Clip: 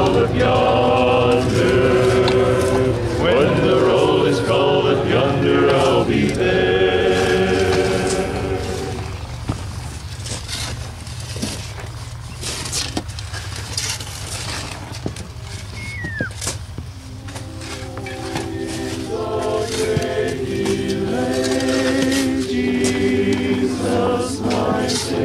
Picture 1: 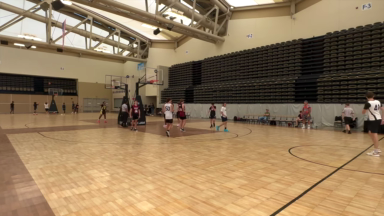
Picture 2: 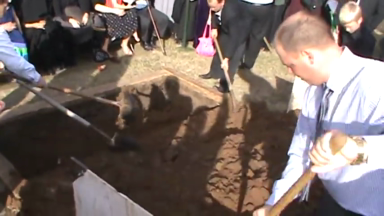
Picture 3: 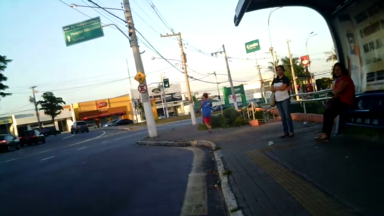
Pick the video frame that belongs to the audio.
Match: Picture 2